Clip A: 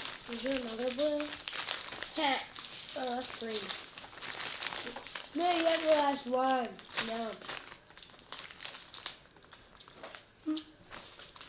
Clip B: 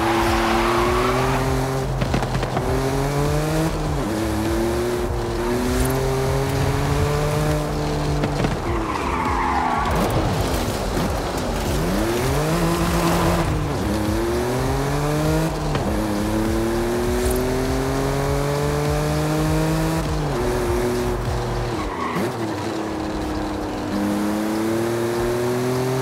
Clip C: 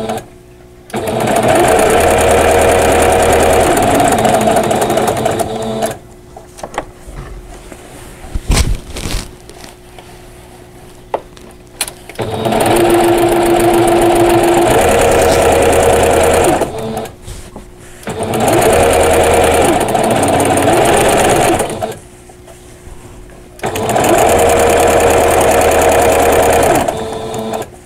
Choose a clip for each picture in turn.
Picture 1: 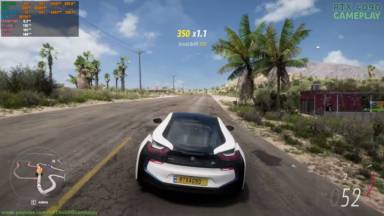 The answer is B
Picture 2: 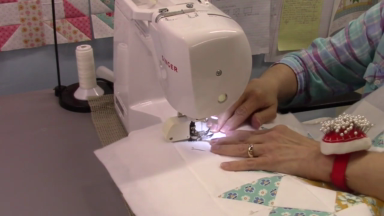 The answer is C